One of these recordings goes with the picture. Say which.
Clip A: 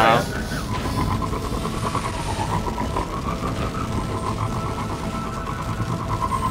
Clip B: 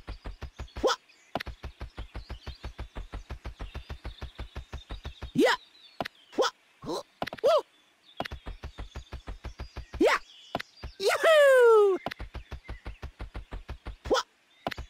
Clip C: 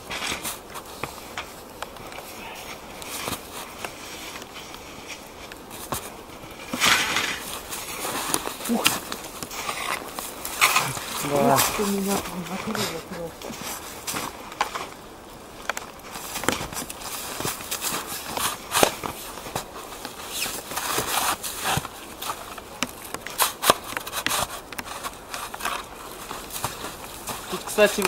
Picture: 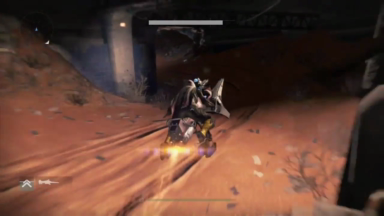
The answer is A